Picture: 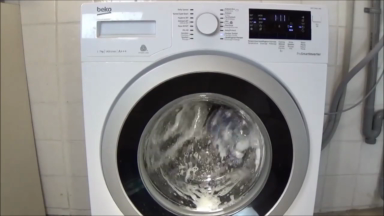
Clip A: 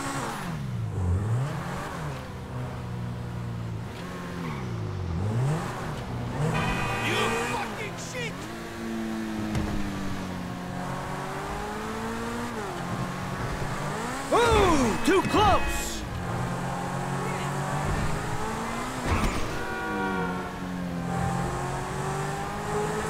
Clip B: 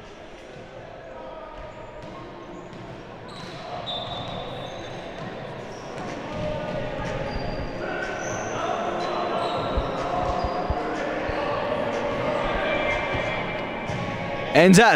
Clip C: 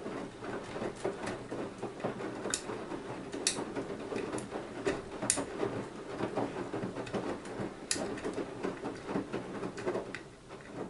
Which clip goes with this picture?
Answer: C